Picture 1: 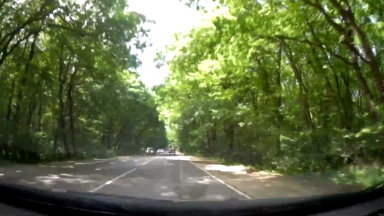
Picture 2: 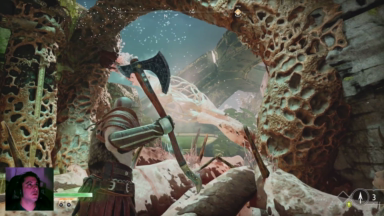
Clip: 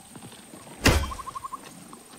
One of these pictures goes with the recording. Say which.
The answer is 2